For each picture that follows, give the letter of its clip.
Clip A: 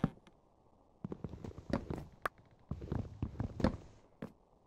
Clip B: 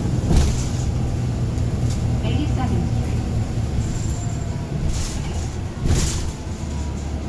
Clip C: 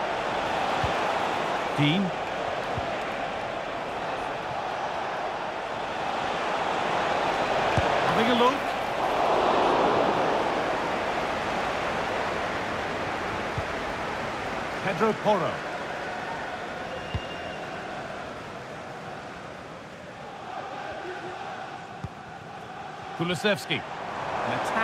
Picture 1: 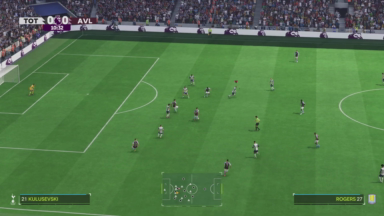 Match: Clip C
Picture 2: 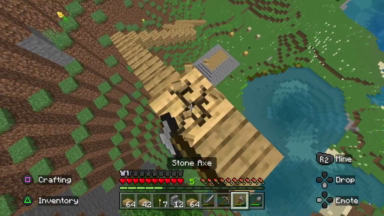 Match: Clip A